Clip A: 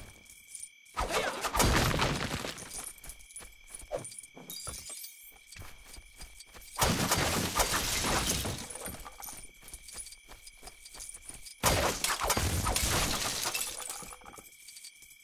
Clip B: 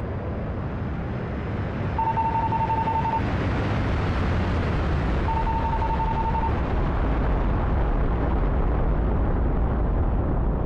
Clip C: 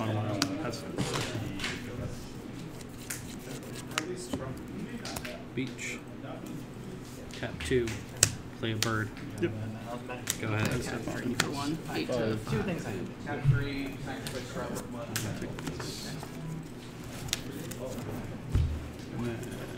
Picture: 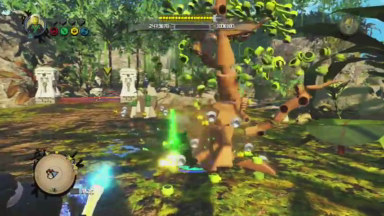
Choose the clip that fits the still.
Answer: A